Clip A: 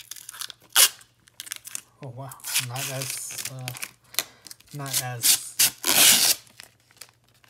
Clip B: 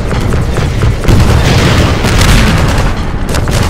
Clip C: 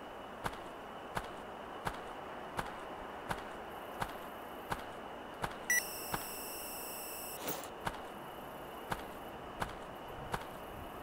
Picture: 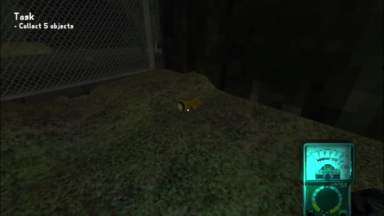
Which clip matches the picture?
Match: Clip C